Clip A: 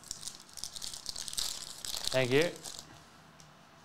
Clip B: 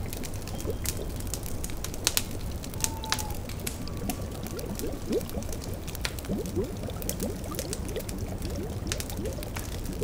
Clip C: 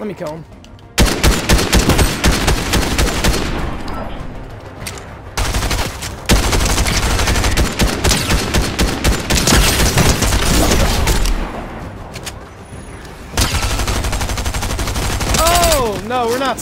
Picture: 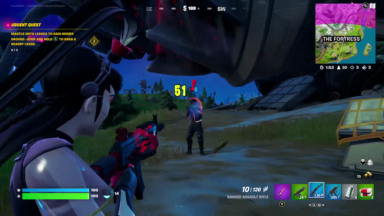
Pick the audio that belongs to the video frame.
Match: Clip C